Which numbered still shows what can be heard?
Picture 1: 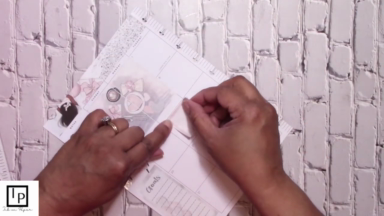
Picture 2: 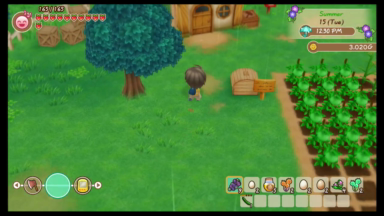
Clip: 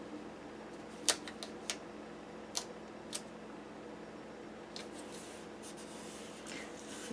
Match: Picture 1